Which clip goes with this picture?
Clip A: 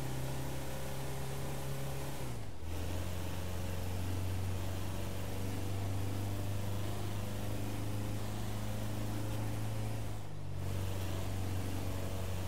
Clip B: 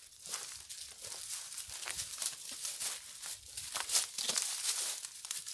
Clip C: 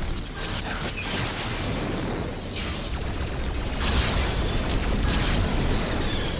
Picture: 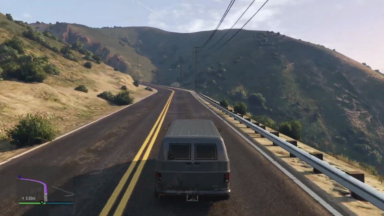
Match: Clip A